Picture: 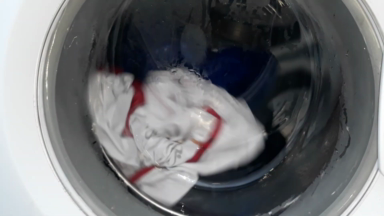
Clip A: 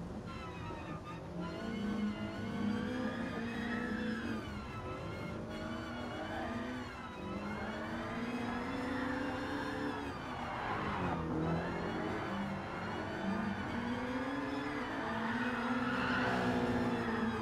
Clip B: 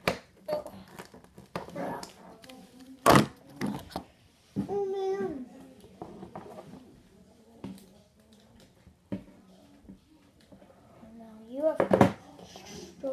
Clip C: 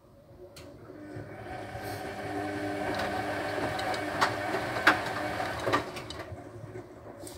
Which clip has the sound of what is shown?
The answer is C